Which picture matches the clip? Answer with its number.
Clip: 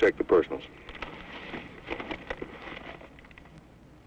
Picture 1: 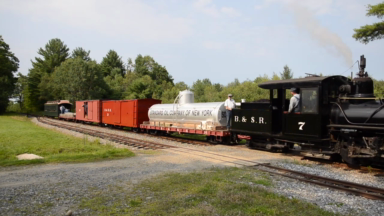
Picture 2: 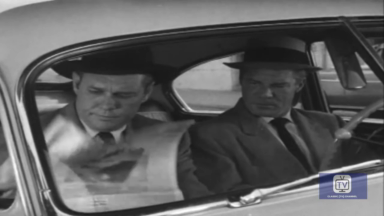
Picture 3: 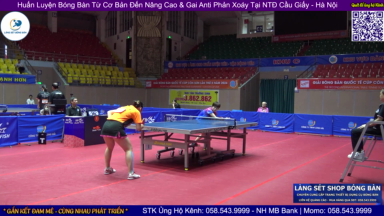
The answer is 2